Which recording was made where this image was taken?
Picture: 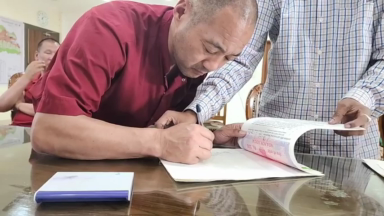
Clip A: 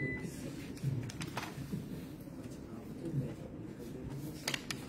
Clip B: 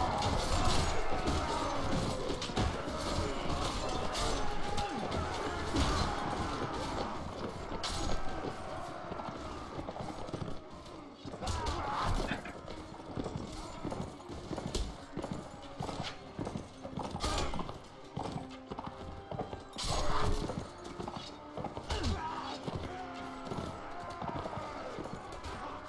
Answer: A